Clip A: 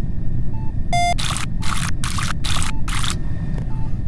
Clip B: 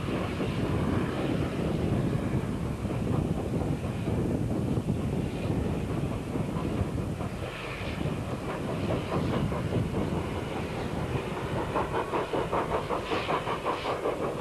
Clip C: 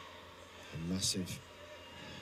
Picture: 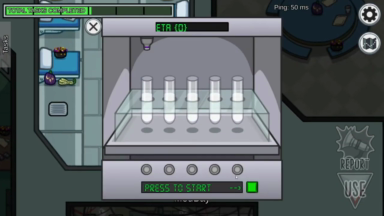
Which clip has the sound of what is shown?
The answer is A